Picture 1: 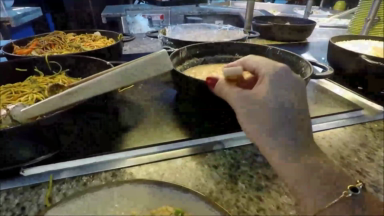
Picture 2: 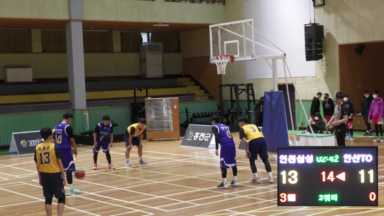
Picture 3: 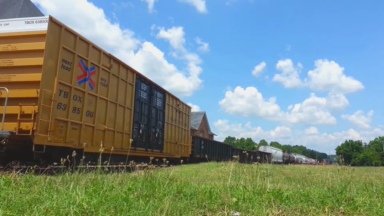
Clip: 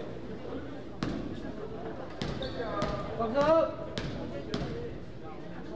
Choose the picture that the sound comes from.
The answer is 2